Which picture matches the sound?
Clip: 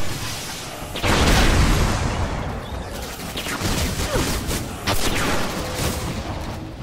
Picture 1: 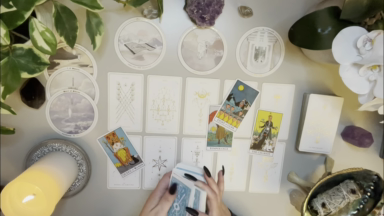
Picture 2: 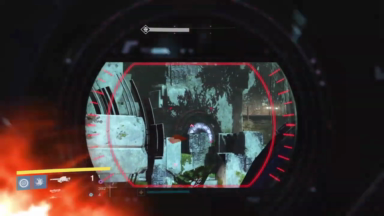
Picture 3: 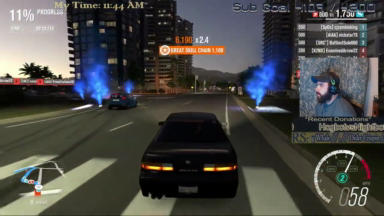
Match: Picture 2